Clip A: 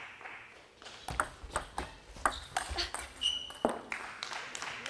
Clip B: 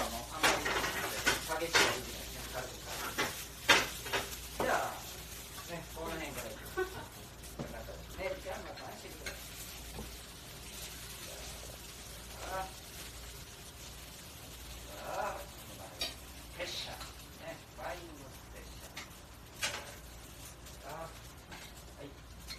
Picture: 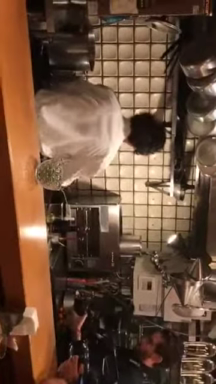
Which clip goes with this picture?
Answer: B